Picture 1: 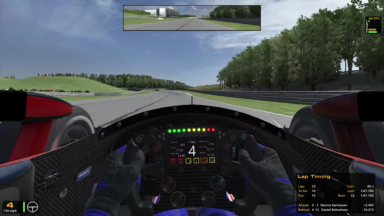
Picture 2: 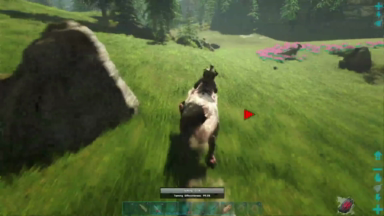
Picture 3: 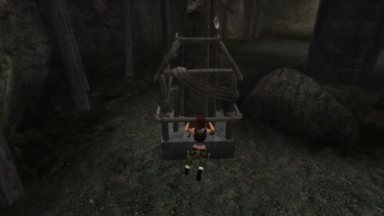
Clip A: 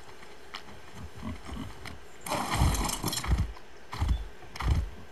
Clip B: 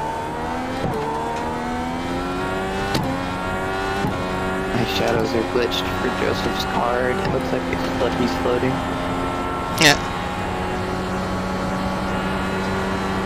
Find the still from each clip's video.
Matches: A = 2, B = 1